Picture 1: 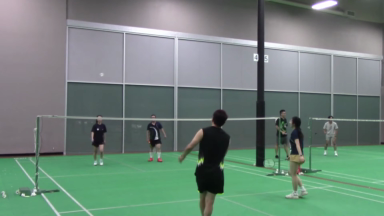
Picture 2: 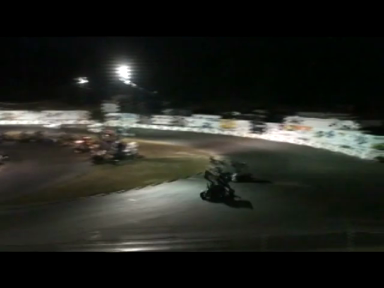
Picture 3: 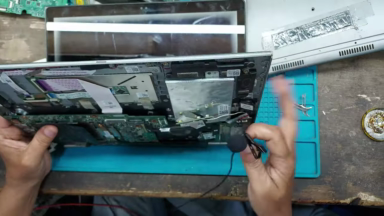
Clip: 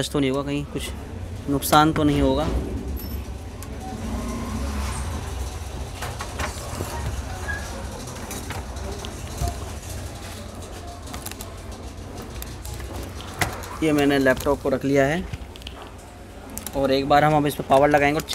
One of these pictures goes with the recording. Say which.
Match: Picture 3